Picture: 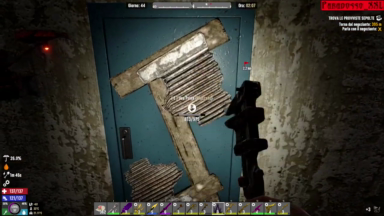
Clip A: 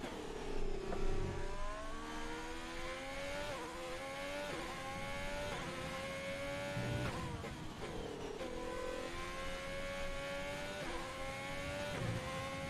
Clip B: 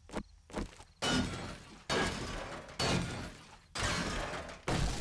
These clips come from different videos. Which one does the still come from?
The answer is B